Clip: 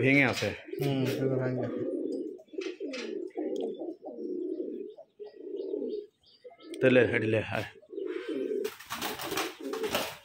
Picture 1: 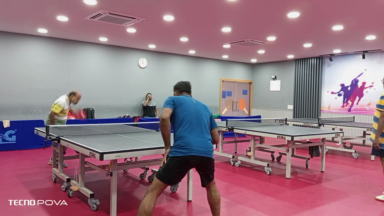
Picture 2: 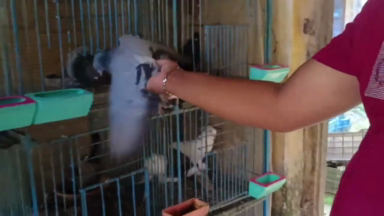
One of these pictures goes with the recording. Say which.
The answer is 2